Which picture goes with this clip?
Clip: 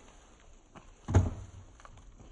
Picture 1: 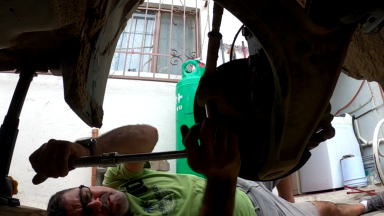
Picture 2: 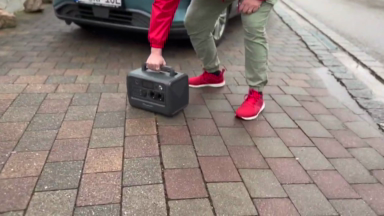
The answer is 2